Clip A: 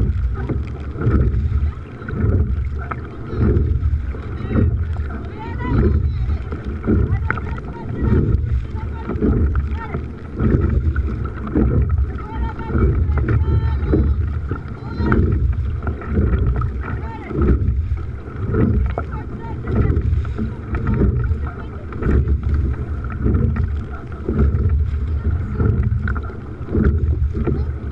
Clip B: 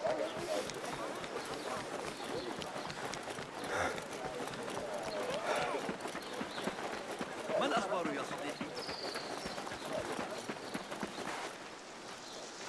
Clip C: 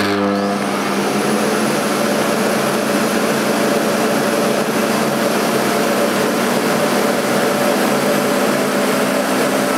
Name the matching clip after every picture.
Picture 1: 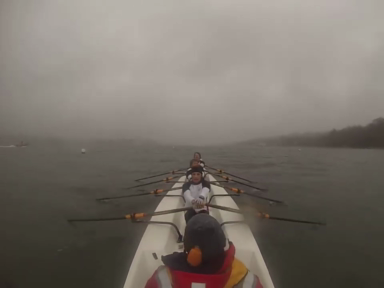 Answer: A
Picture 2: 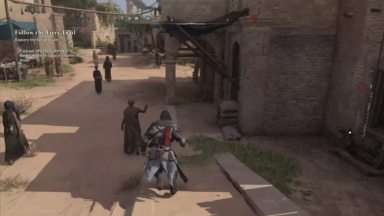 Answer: B